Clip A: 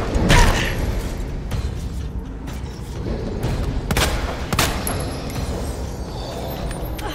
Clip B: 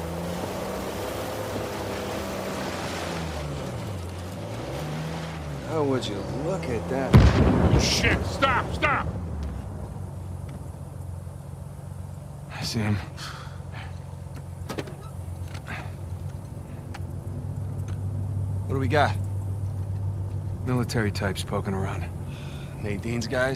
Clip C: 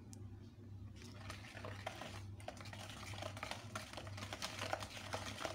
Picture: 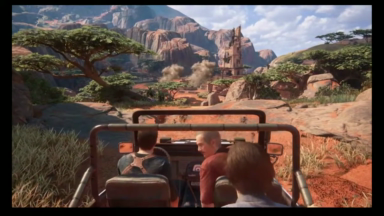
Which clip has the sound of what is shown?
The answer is B